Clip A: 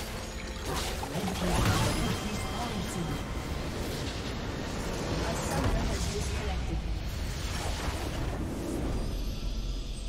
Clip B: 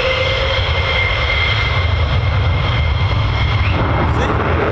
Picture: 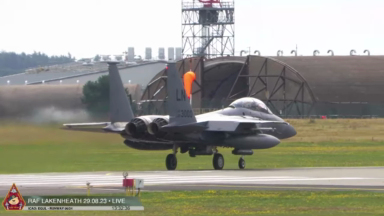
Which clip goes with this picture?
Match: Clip B